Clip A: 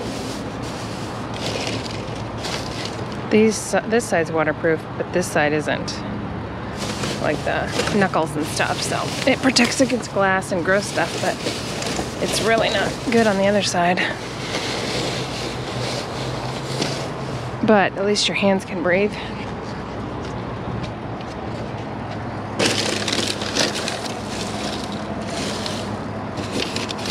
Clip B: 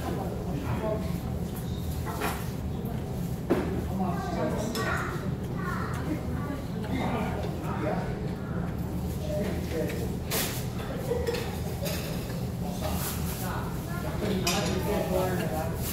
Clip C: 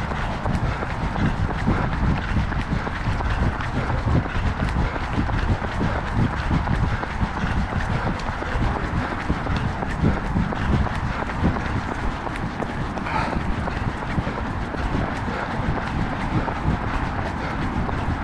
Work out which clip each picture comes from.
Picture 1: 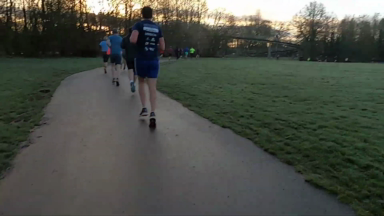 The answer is C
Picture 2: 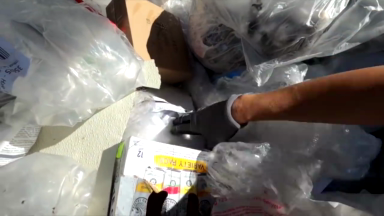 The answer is A